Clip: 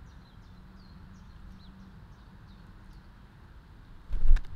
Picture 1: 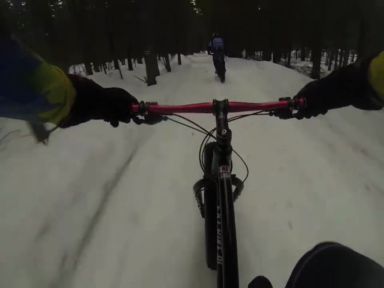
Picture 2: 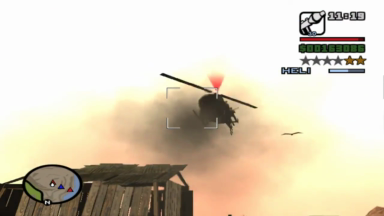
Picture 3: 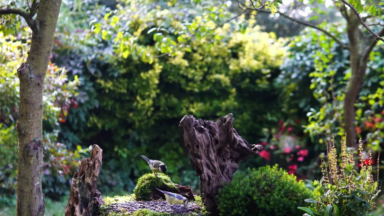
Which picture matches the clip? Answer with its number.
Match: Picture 3